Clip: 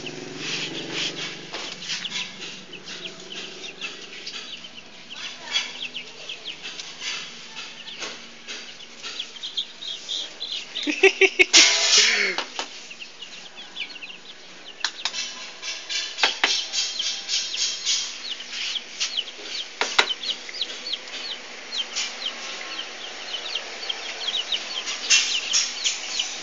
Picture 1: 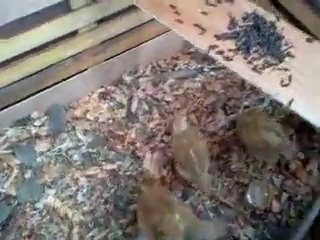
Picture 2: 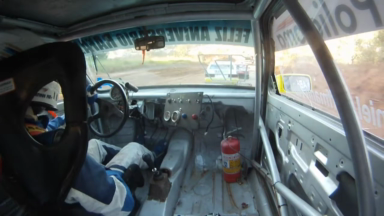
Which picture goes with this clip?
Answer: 1